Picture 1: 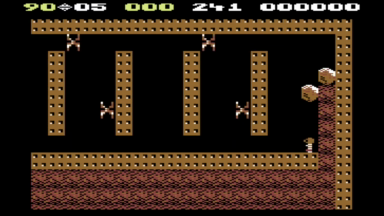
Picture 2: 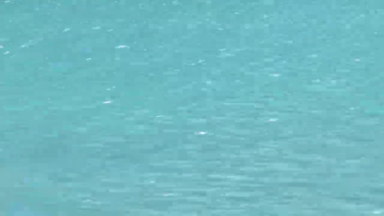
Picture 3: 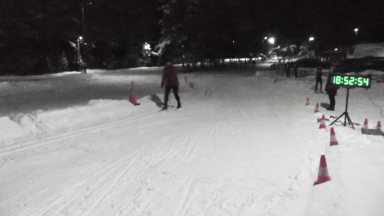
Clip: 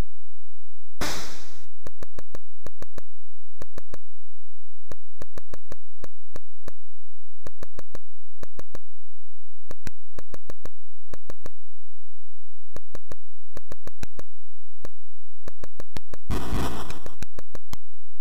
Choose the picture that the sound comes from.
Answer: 1